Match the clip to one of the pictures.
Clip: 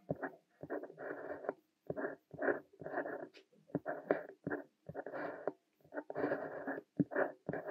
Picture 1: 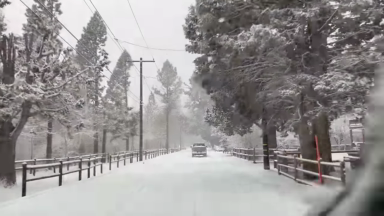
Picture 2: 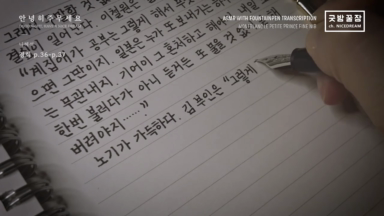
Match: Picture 2